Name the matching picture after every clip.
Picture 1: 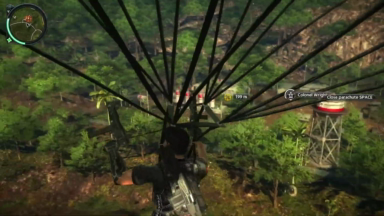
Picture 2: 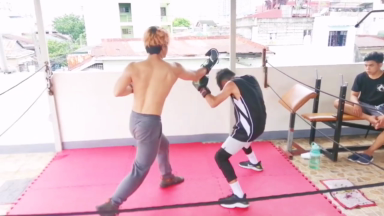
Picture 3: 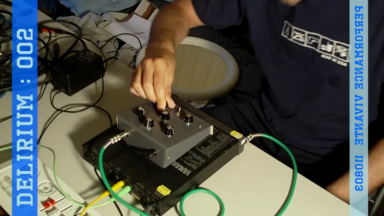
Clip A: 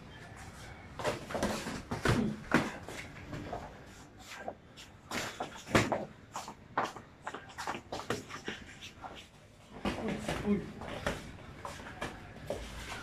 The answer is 2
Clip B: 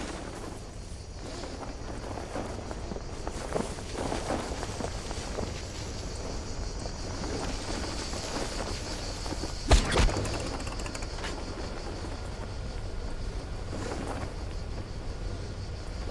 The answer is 1